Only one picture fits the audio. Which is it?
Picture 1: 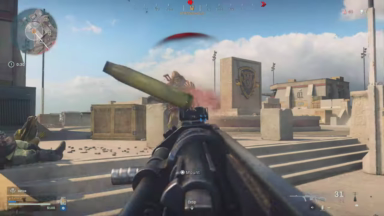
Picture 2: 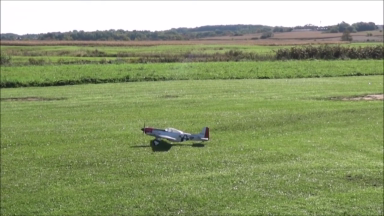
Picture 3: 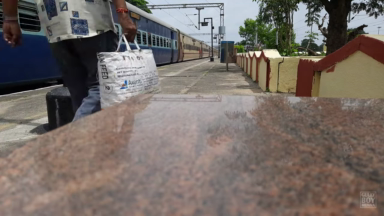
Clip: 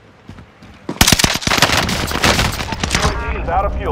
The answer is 1